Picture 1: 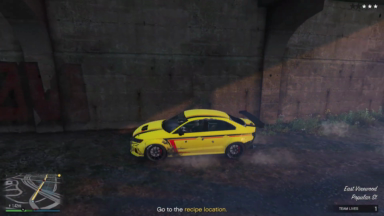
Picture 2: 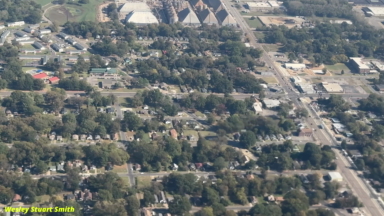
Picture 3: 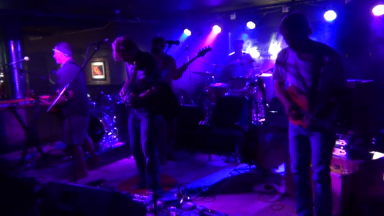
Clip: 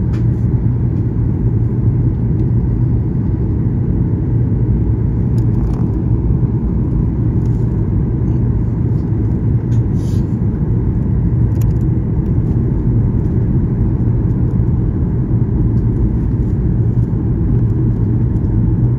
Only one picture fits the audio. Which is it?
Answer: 2